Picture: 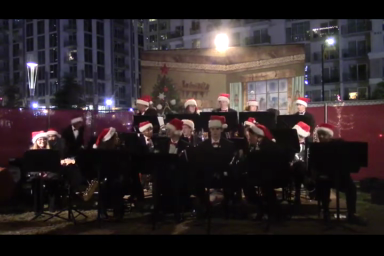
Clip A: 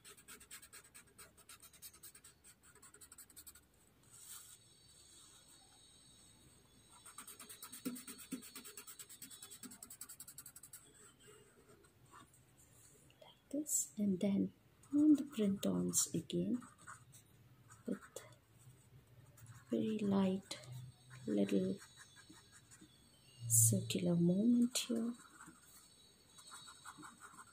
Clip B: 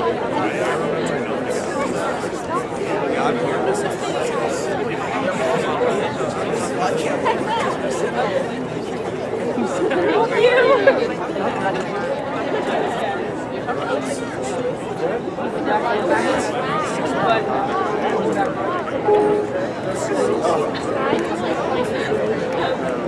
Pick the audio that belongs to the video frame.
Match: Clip B